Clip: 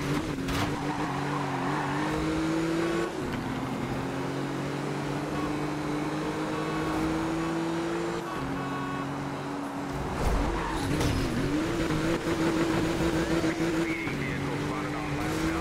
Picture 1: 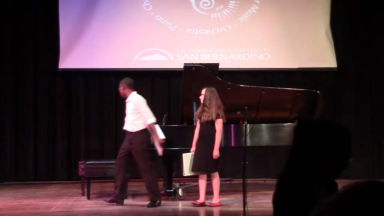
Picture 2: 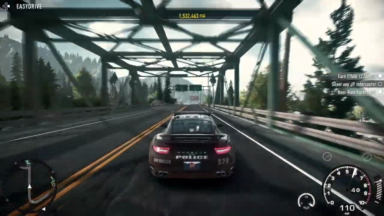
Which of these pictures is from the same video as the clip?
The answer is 2